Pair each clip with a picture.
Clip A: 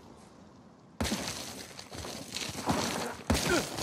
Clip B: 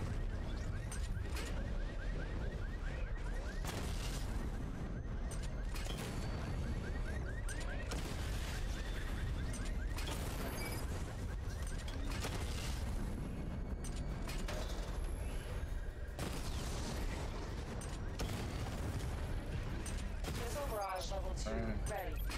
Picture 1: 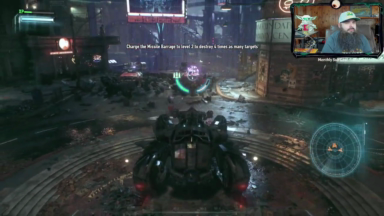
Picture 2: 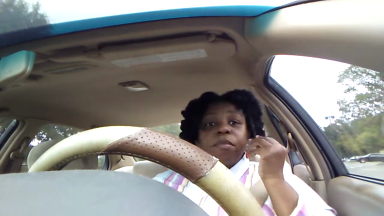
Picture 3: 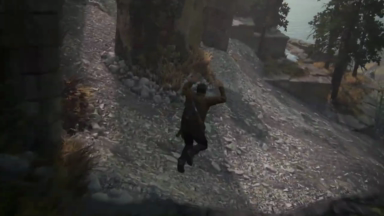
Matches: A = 3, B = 1